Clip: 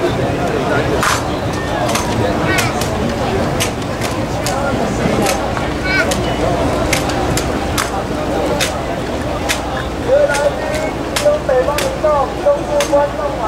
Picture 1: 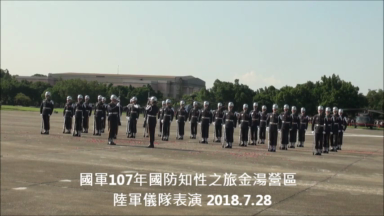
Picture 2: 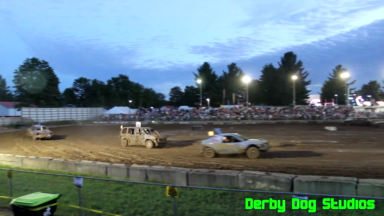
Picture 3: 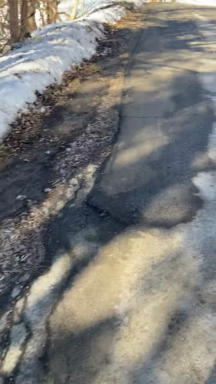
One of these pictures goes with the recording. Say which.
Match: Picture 1